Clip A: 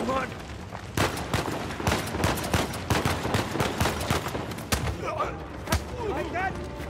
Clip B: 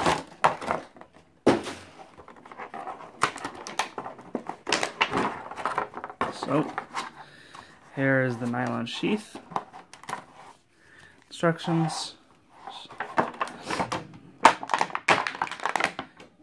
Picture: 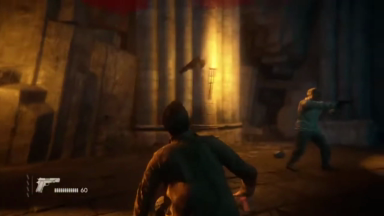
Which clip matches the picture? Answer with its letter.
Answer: A